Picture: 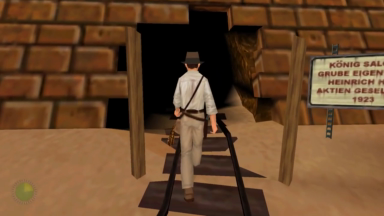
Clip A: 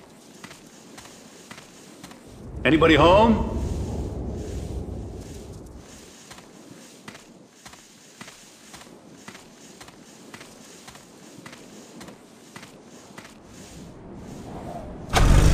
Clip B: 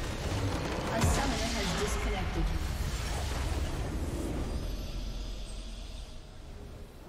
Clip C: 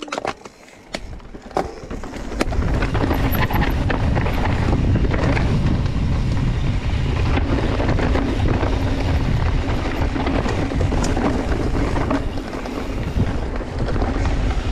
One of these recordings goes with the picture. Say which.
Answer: A